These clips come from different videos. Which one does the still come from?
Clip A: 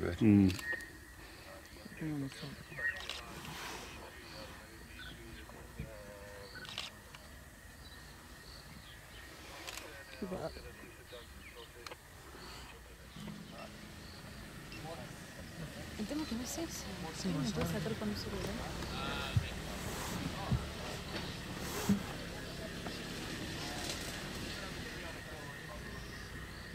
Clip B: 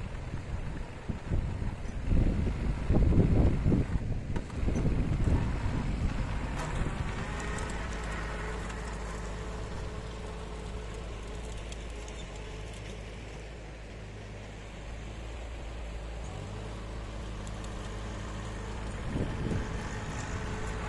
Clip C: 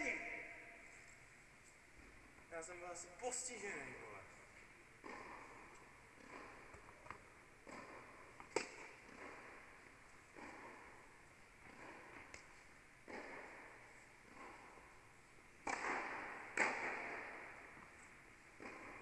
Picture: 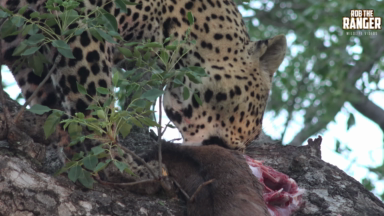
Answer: A